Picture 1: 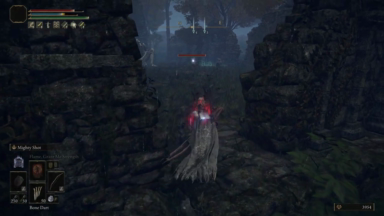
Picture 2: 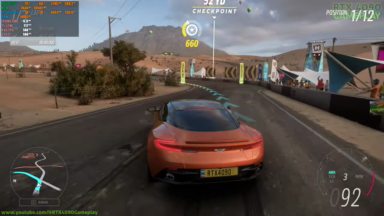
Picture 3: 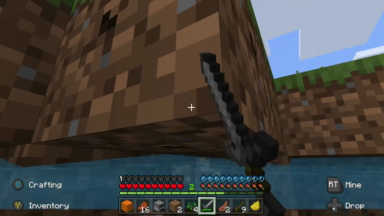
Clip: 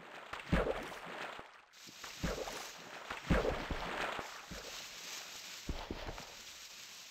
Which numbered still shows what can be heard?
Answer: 3